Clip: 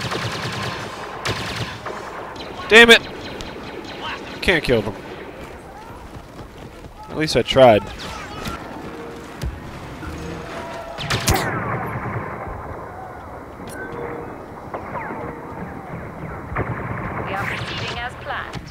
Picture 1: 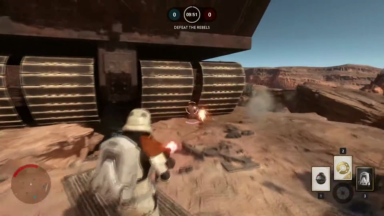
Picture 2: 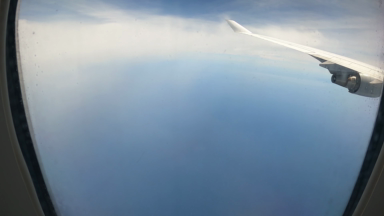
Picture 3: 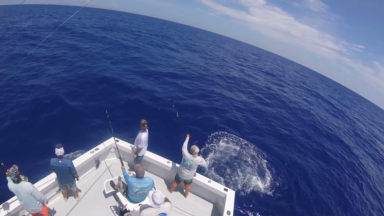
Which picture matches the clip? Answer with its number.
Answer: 1